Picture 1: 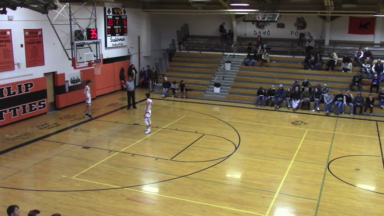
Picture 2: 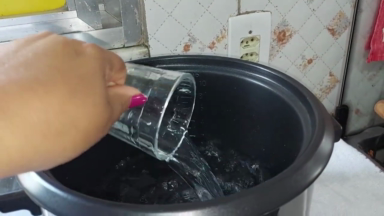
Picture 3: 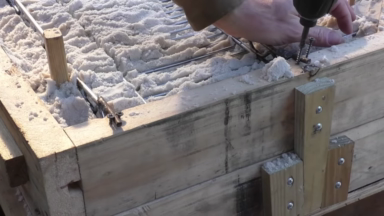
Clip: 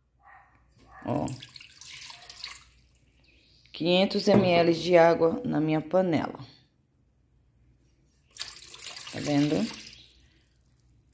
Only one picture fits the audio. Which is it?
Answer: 2